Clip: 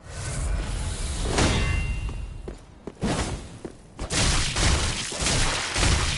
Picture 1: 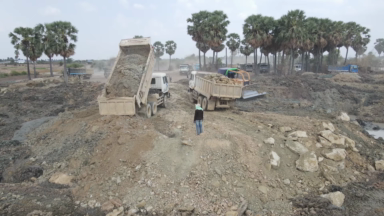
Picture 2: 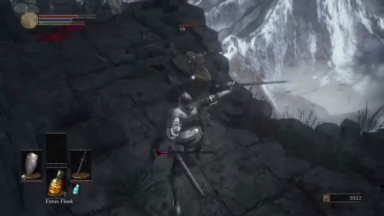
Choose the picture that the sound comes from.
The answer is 2